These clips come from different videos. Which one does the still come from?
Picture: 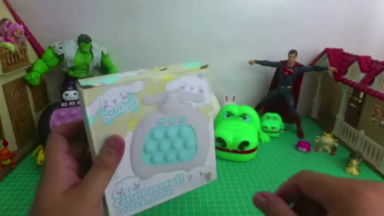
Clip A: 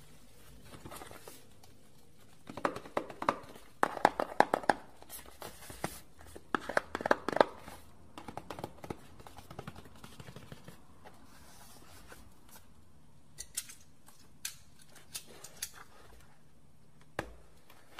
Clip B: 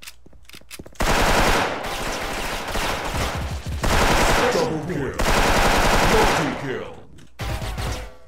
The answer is A